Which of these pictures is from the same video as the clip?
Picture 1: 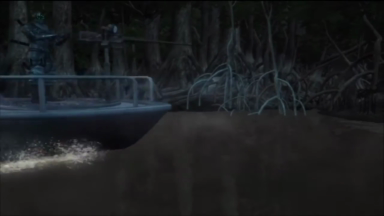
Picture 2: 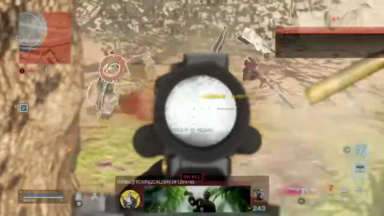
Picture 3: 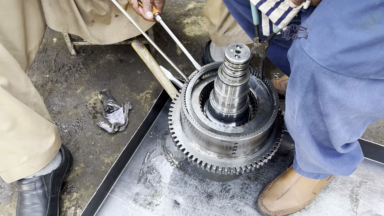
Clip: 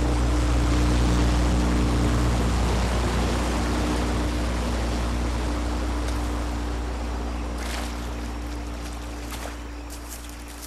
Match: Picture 1